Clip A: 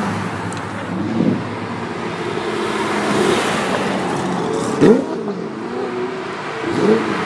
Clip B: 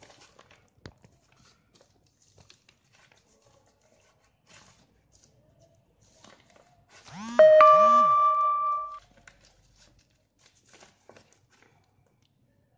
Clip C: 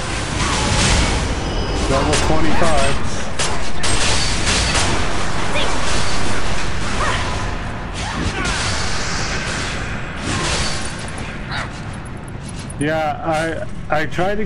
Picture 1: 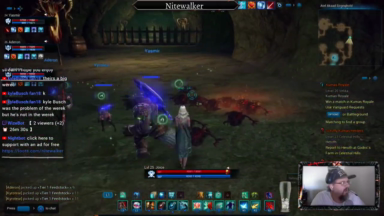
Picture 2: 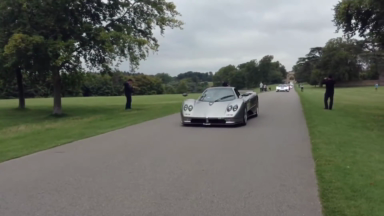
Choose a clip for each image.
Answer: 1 C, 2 A